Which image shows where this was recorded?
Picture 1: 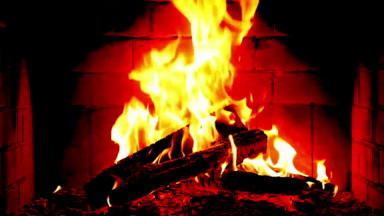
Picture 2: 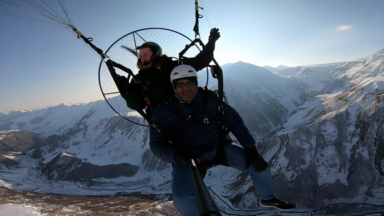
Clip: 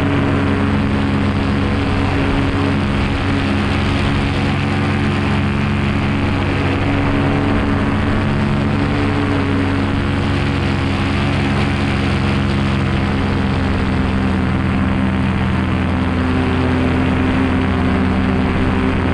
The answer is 2